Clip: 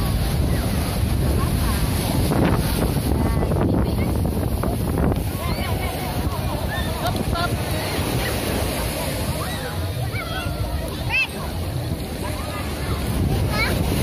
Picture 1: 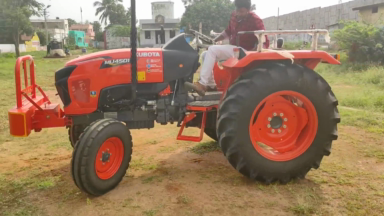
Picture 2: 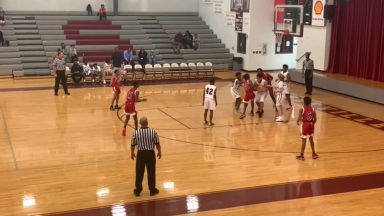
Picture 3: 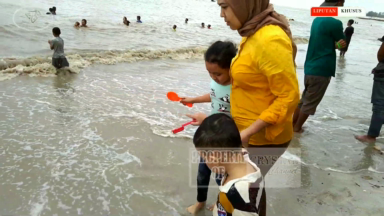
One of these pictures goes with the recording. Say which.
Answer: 3